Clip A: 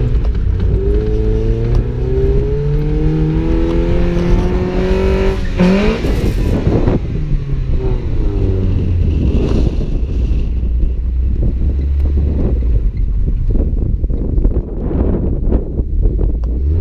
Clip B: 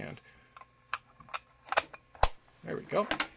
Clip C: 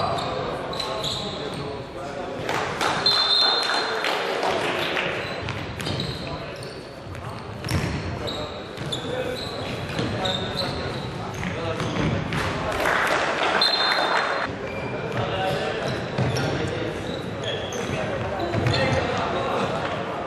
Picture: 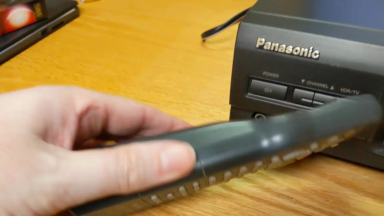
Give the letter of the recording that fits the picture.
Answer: B